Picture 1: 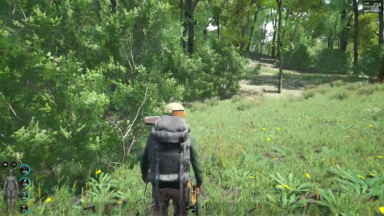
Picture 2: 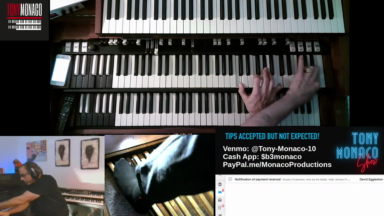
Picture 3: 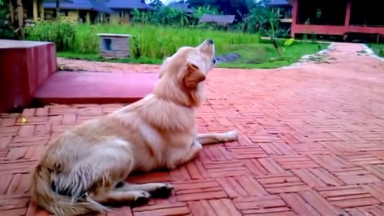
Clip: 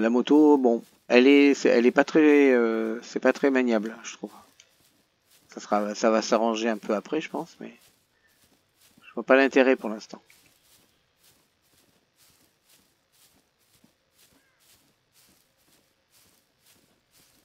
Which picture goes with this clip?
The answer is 1